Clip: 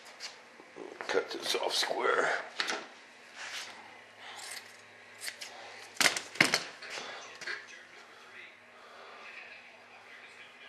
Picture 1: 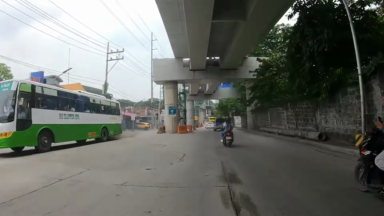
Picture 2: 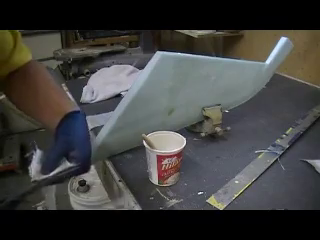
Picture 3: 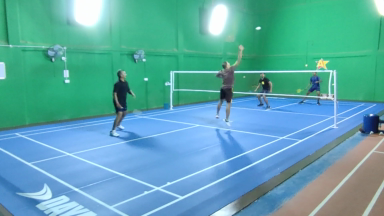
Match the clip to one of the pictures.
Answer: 2